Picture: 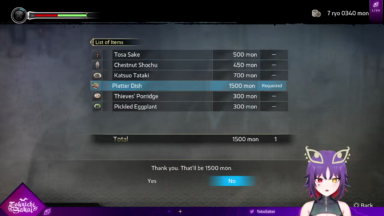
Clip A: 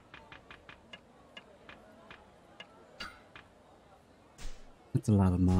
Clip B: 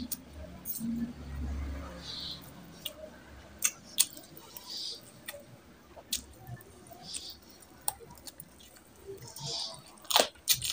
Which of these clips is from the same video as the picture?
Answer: A